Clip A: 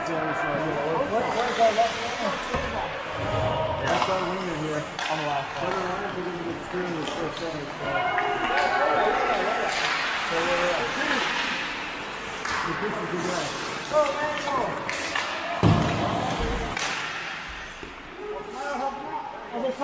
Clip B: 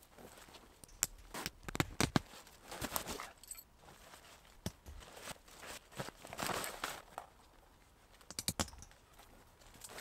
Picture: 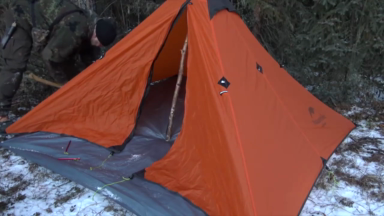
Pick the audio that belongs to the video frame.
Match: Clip B